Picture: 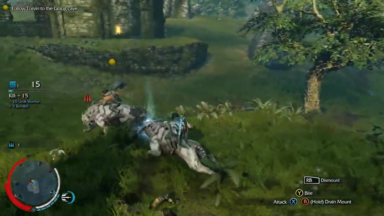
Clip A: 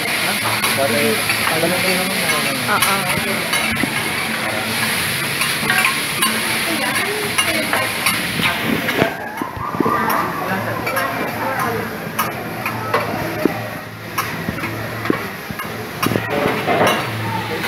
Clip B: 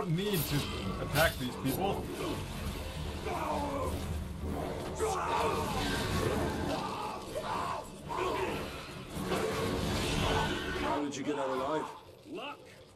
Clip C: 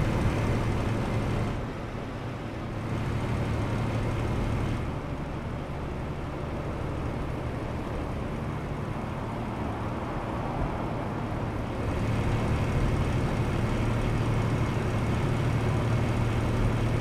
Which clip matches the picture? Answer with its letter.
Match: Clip B